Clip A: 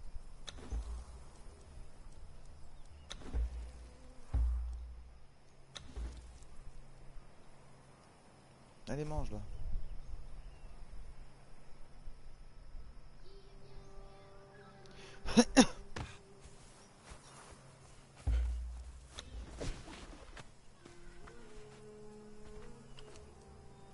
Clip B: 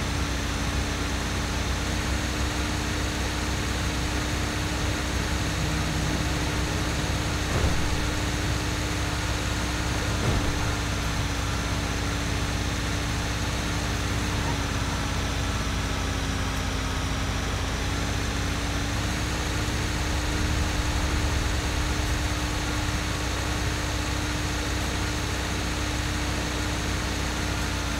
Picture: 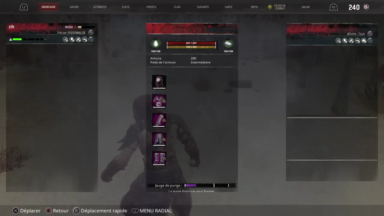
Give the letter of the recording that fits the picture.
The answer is A